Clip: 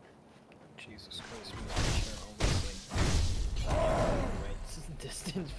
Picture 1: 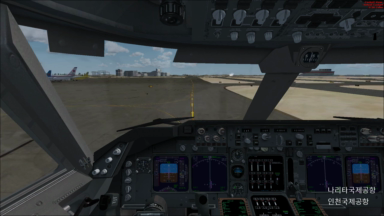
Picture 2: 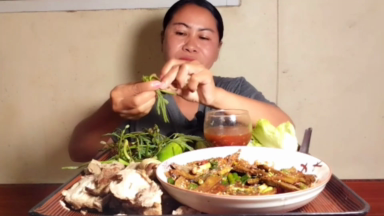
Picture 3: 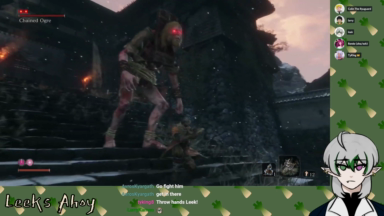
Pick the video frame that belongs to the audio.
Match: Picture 3